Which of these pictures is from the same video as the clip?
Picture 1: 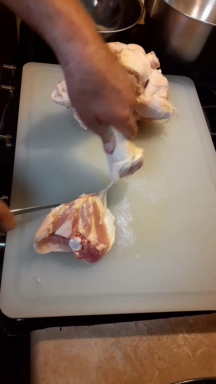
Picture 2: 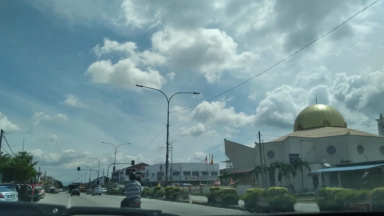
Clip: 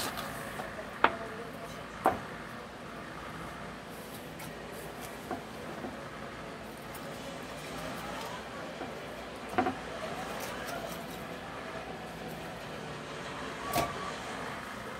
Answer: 1